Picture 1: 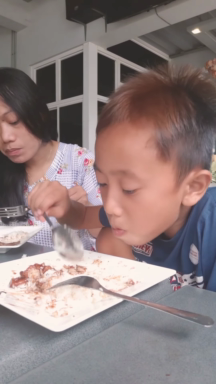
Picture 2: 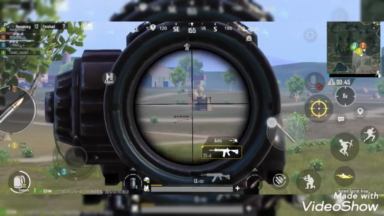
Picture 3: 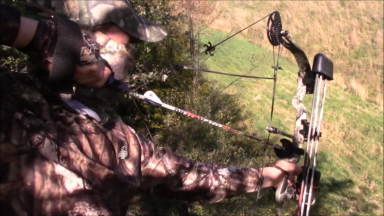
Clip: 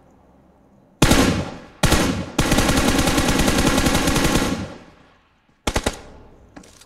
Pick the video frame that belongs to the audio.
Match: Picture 2